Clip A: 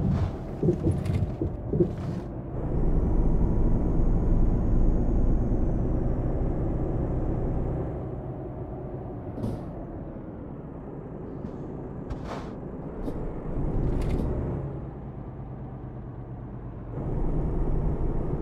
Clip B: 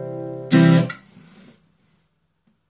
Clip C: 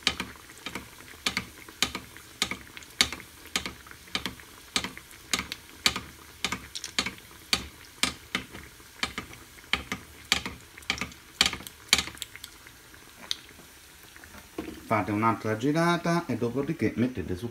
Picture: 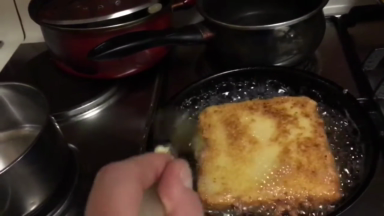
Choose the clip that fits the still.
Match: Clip C